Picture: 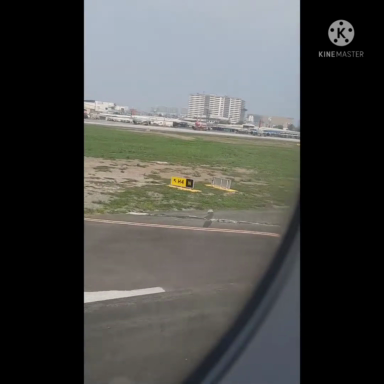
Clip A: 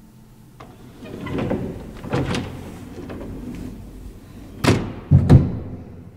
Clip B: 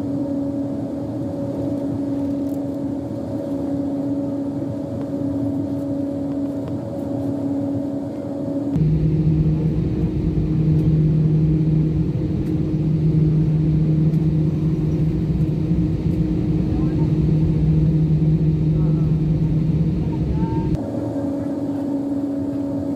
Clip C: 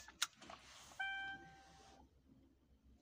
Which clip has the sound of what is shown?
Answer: B